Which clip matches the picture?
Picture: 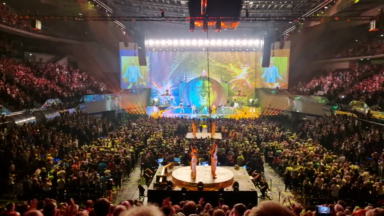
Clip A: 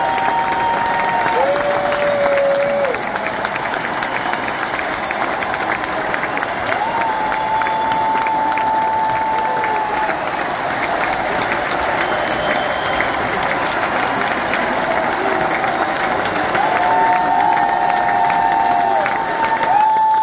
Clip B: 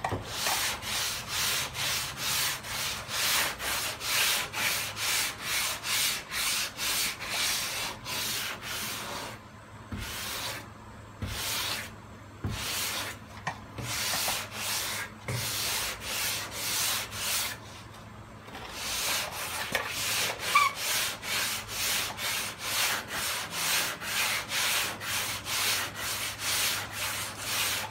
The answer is A